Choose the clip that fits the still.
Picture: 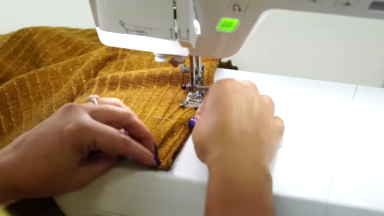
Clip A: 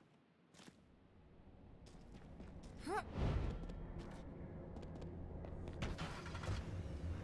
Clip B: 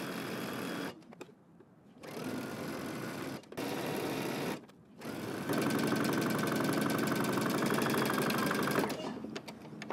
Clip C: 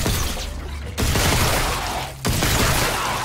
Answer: B